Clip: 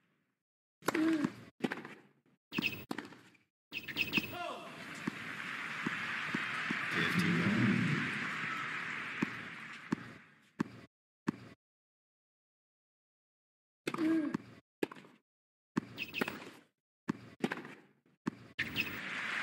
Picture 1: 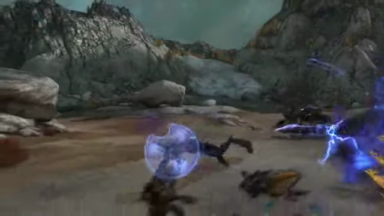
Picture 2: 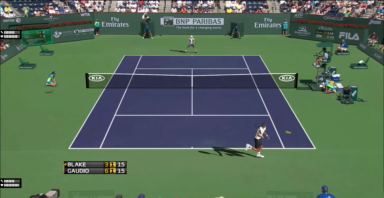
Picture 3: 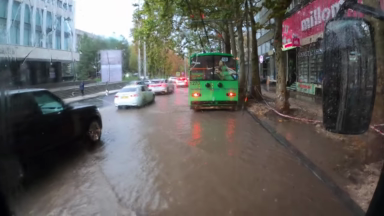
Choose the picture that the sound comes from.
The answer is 2